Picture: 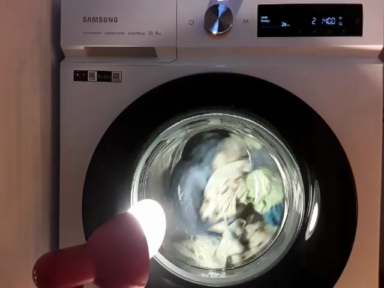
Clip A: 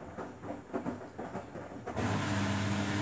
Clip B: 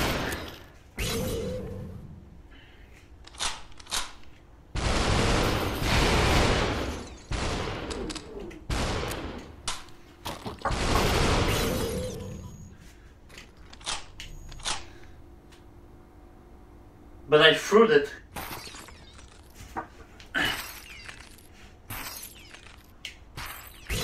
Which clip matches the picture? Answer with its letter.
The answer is A